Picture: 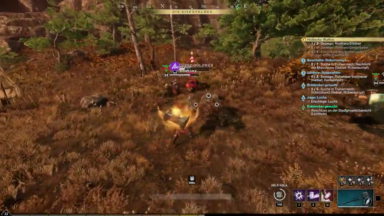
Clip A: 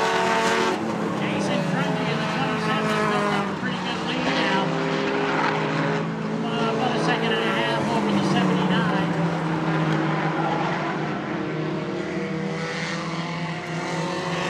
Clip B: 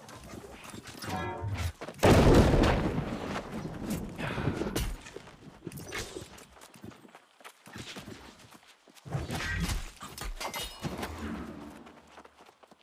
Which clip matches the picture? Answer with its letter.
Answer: B